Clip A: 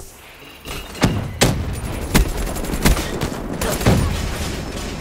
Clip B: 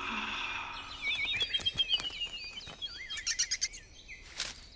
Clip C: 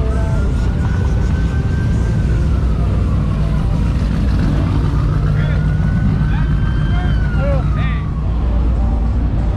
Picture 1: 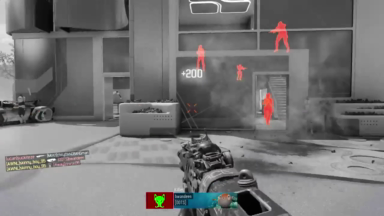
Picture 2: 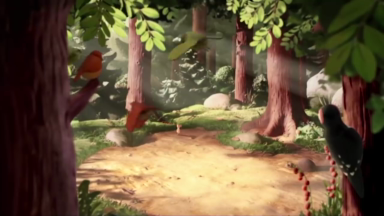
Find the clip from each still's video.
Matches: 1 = A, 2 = B